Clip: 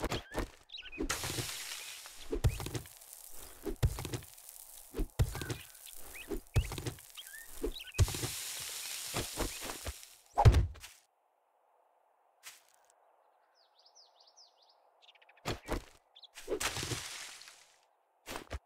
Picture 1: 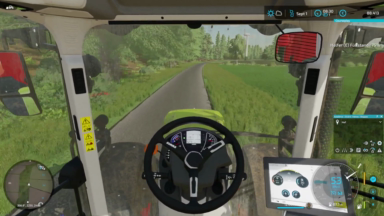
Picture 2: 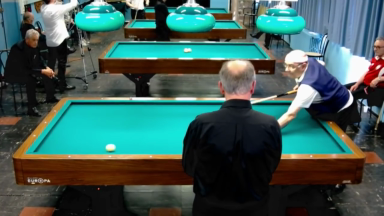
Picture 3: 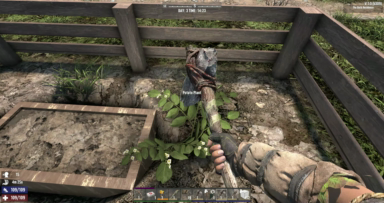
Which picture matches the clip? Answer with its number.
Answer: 3